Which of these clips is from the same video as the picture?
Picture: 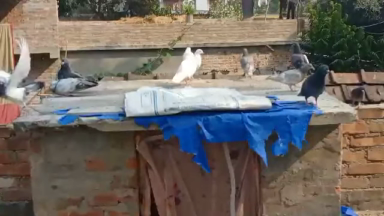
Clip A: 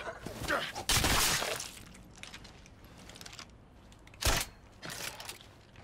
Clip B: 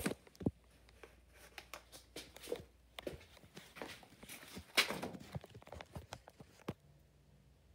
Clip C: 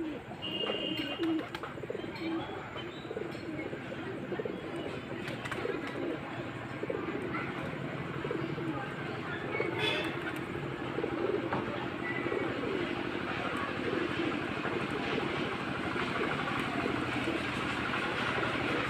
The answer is C